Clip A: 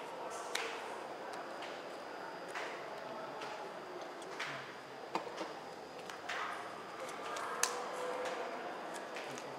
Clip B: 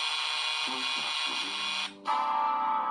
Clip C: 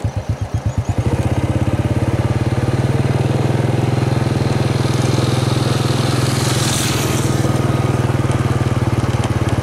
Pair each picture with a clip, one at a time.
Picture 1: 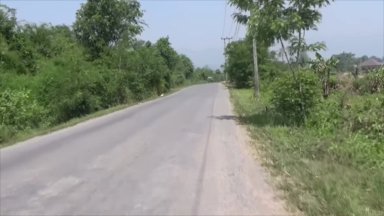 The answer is C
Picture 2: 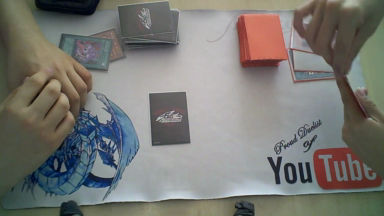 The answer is A